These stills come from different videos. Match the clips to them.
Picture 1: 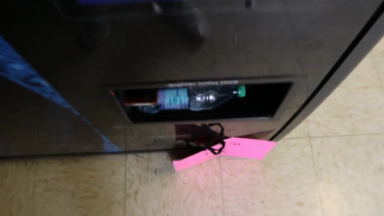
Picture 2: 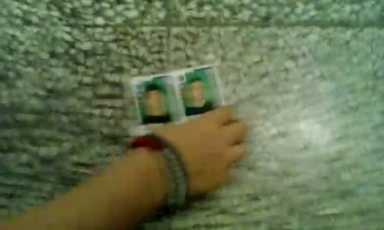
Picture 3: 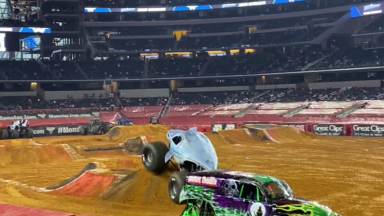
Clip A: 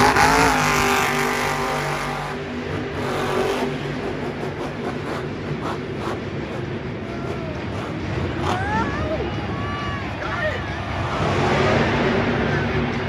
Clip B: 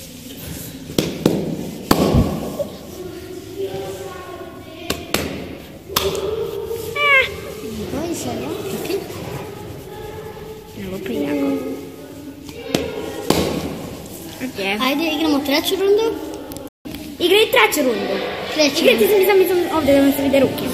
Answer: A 3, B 2